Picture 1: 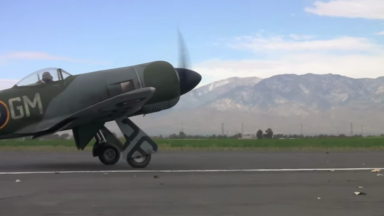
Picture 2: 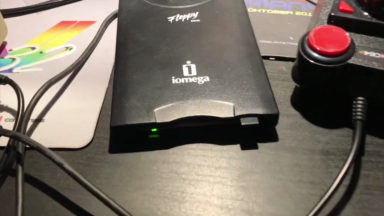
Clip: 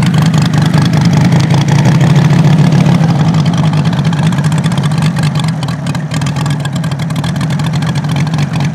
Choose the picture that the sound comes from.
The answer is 1